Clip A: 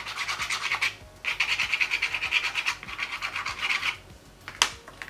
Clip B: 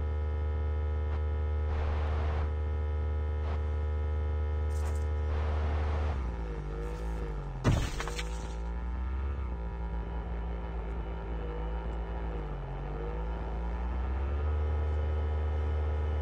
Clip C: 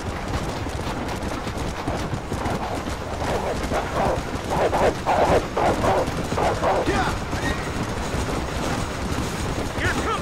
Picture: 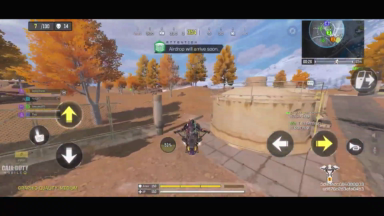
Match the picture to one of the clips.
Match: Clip B